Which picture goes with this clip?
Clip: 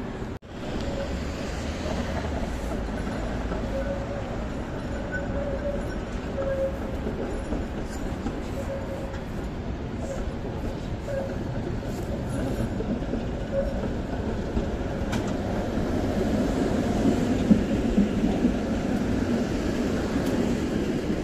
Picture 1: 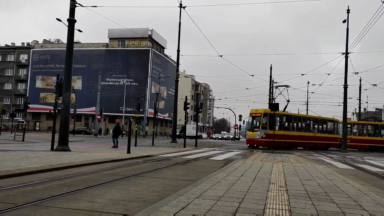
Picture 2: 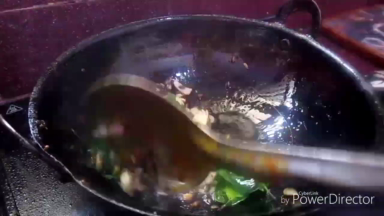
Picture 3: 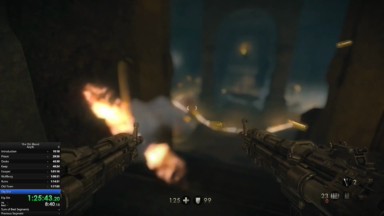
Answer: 1